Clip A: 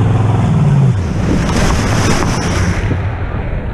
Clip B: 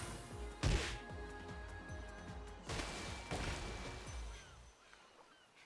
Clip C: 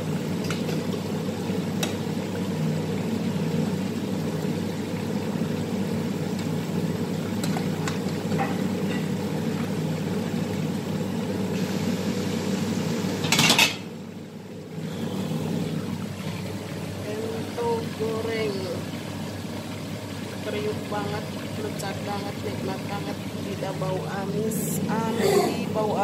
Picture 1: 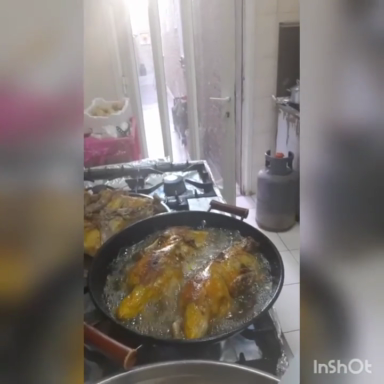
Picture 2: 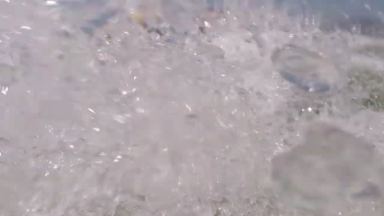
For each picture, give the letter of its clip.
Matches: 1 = C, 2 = A